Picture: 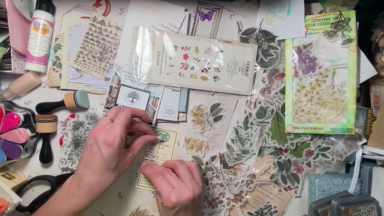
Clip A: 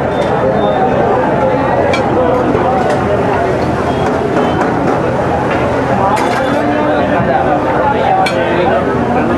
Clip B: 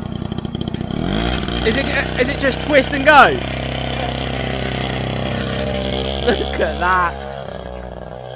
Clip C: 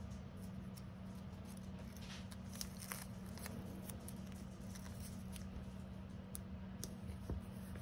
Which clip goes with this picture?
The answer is C